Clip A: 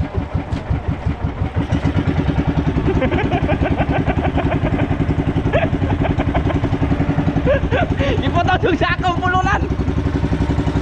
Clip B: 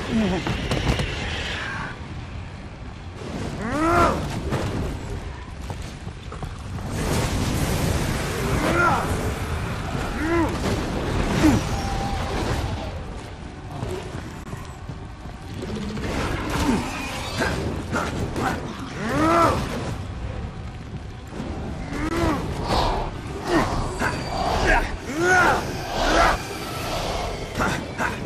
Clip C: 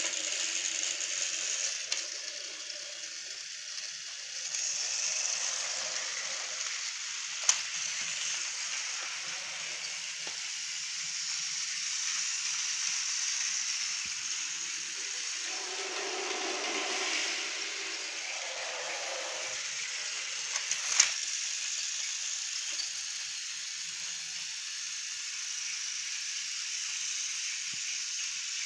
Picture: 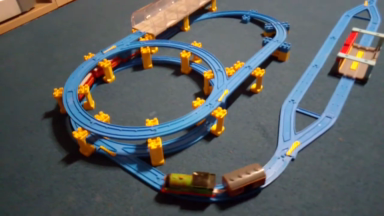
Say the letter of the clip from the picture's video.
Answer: C